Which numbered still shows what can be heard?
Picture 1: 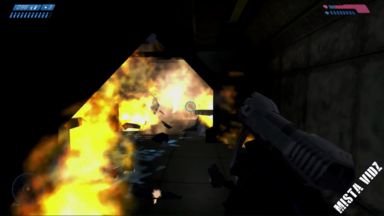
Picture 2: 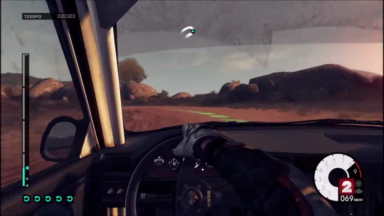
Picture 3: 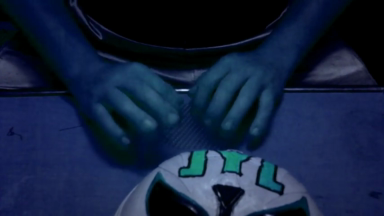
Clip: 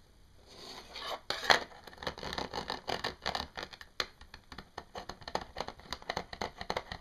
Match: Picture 3